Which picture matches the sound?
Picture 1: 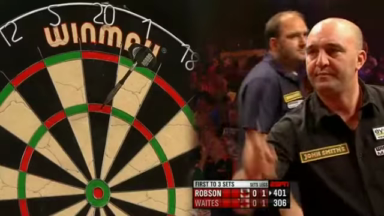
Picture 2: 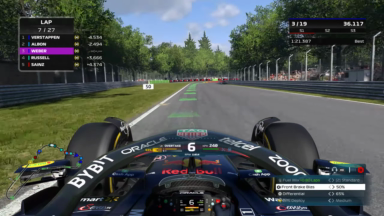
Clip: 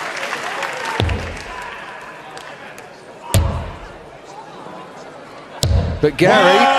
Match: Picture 1